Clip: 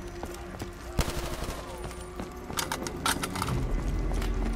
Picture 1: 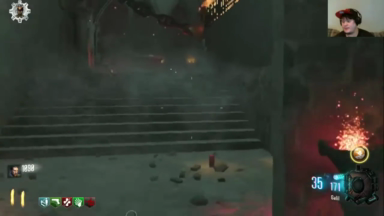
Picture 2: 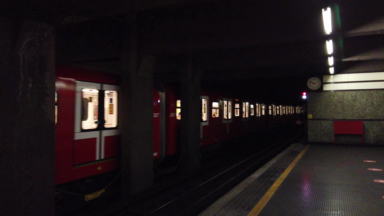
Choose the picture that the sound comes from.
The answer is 1